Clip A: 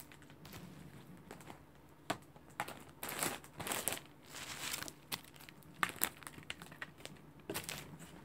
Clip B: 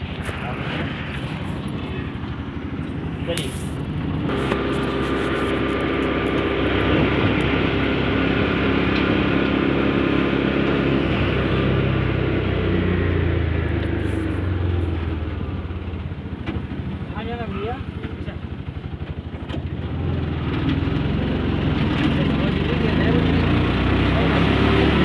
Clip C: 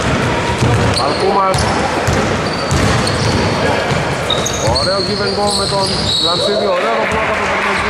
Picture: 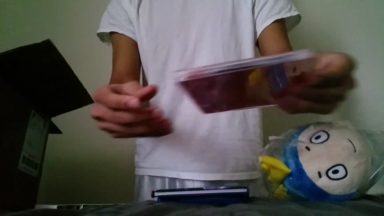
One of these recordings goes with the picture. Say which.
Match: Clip A